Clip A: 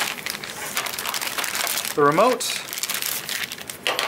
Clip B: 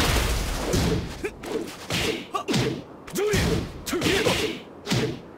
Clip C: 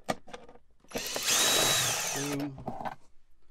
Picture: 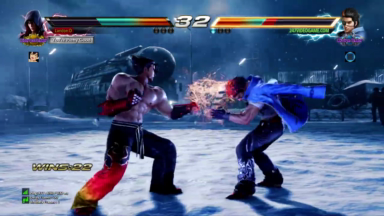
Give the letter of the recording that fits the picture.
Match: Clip B